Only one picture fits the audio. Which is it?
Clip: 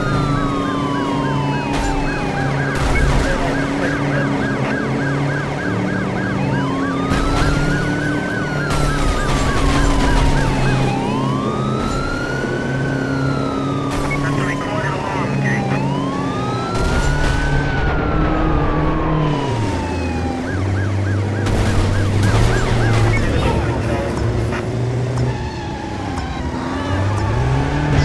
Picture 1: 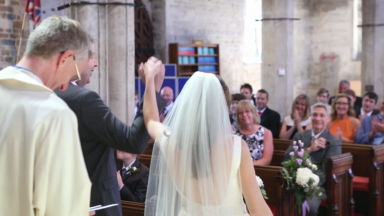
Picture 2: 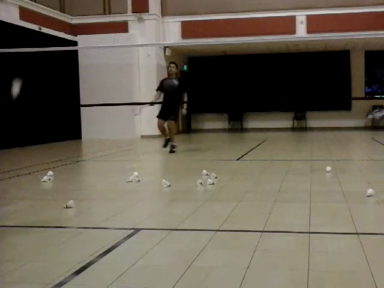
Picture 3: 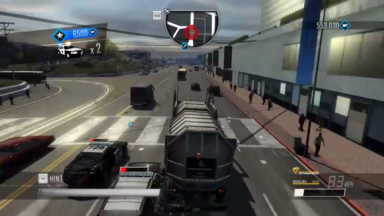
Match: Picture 3